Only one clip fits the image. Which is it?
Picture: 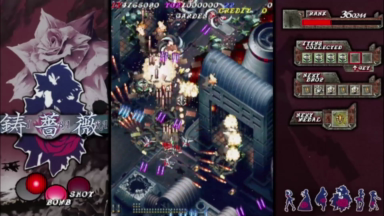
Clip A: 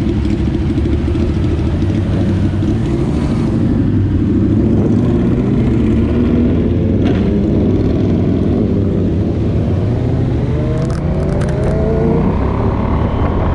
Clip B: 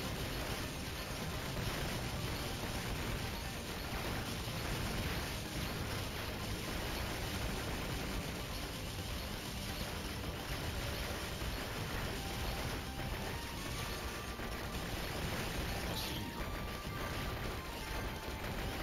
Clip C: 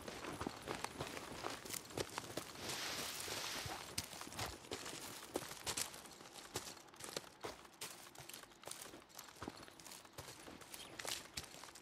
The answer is B